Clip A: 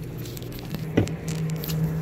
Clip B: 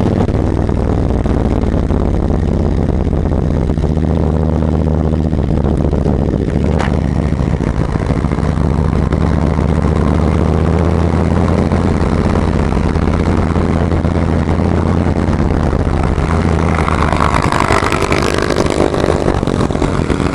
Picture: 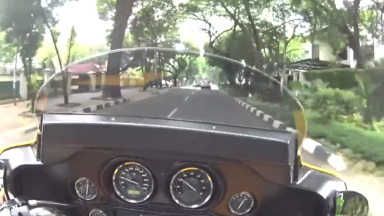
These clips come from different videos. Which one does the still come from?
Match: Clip B